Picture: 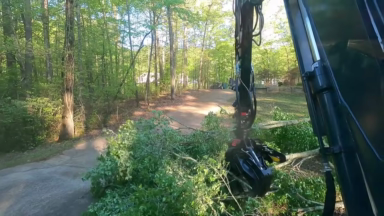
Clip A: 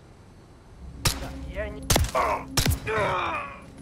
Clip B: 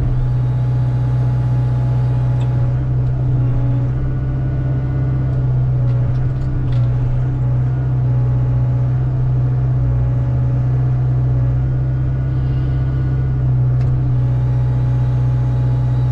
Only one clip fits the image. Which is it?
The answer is B